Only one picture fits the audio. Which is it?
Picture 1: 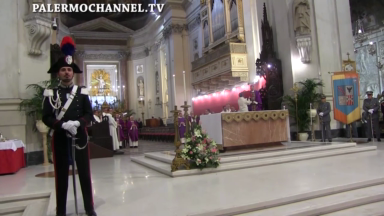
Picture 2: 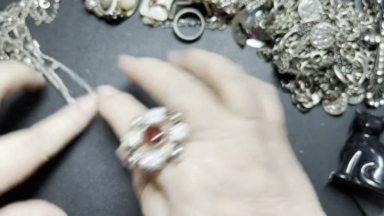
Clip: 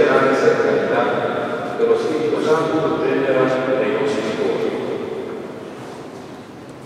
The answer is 1